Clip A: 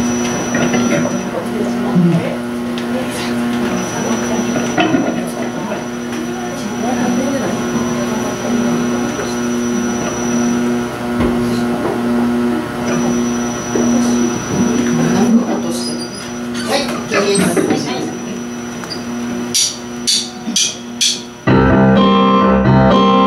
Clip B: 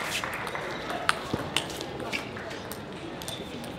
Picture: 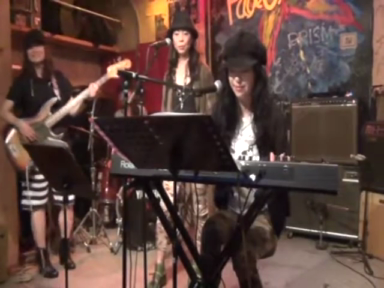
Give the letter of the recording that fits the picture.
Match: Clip A